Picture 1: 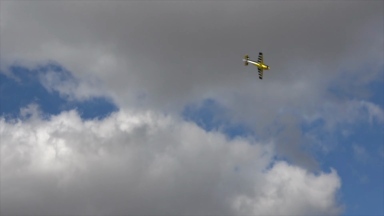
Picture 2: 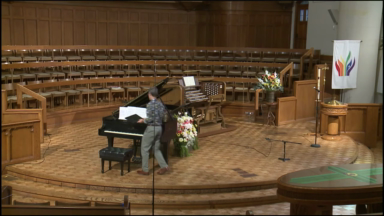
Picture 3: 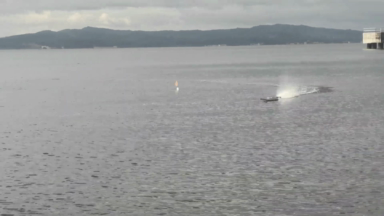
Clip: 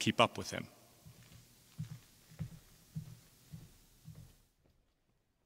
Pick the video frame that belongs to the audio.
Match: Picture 2